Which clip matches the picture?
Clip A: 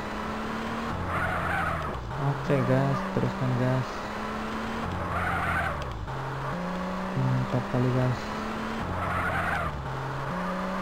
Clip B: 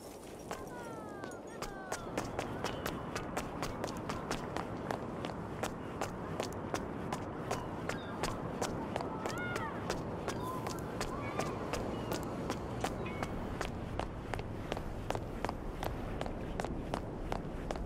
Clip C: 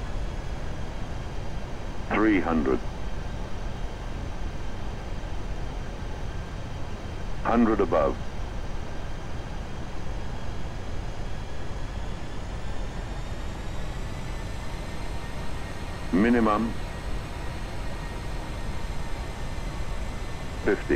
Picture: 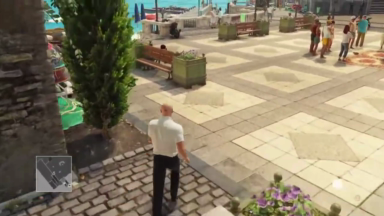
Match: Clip B